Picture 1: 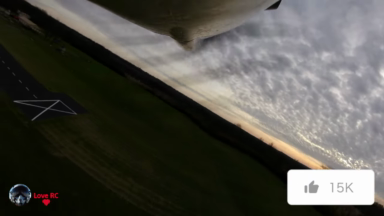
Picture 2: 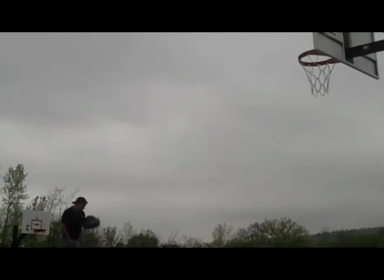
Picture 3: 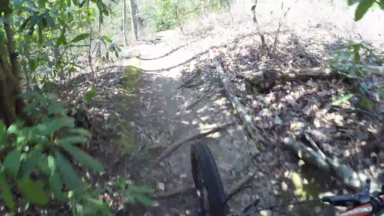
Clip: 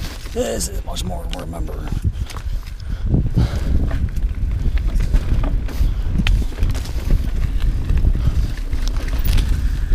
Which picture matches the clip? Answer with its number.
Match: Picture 3